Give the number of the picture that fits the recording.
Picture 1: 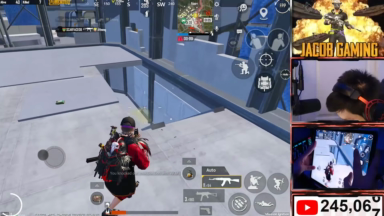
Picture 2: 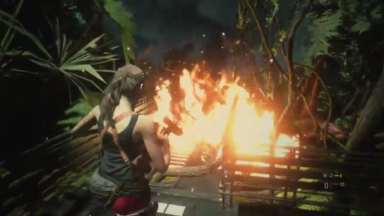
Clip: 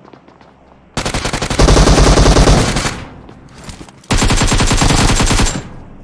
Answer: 1